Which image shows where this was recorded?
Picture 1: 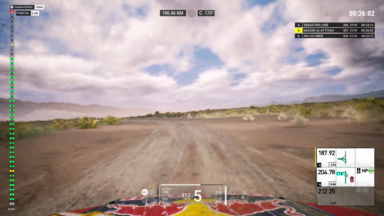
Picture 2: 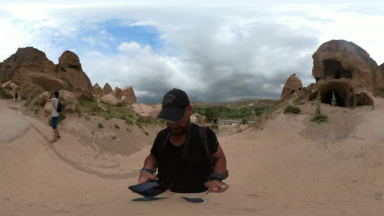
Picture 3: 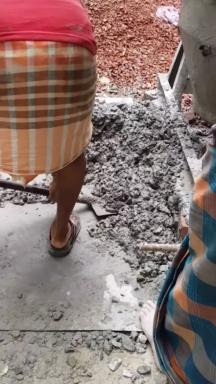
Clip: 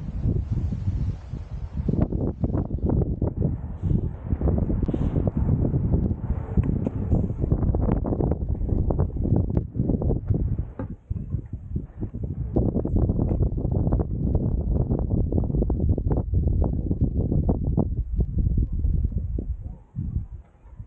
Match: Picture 2